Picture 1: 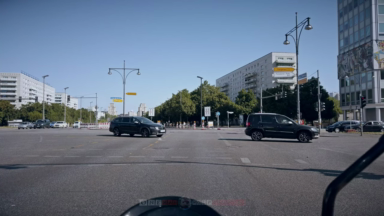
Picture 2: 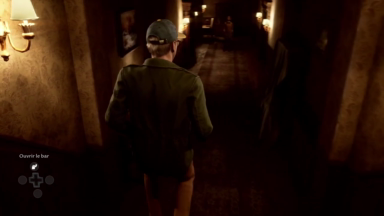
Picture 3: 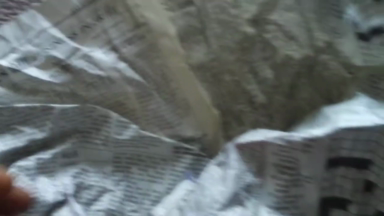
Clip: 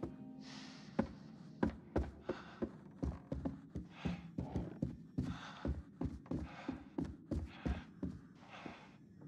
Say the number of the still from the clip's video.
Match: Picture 2